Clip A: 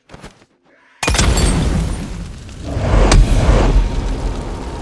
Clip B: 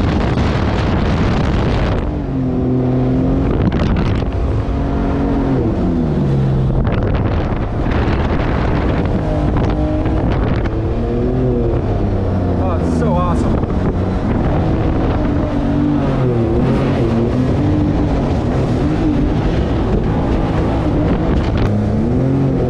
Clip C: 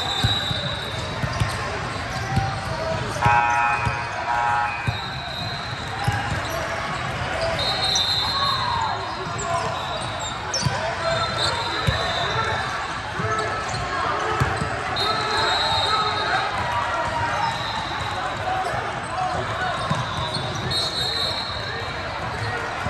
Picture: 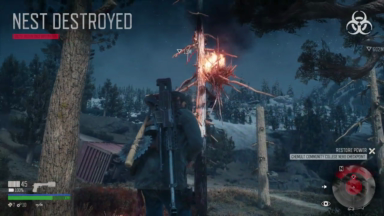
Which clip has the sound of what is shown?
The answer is A